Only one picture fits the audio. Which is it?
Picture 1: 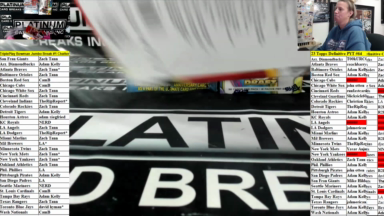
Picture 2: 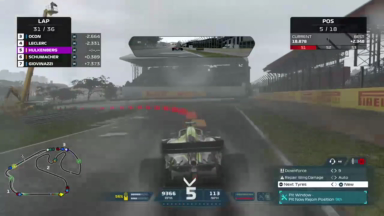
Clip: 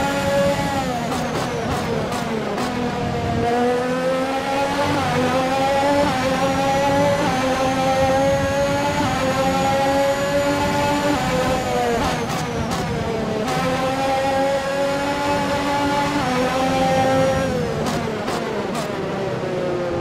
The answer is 2